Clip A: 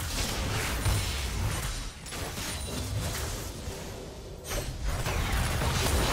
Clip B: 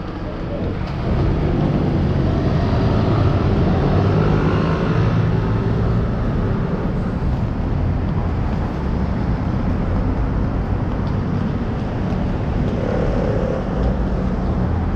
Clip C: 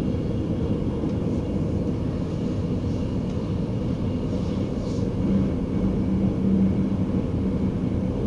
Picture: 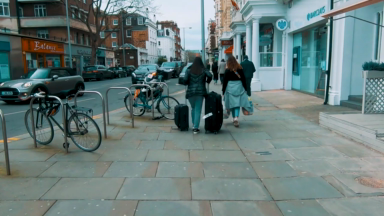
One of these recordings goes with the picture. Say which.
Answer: B